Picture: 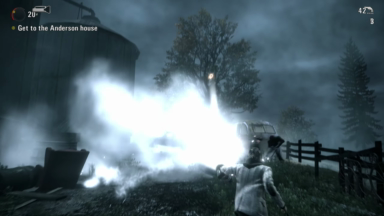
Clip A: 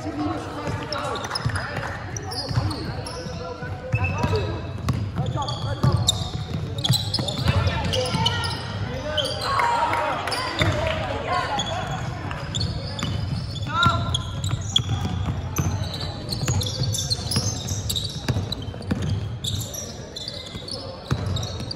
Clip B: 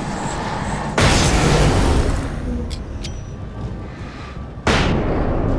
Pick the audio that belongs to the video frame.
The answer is B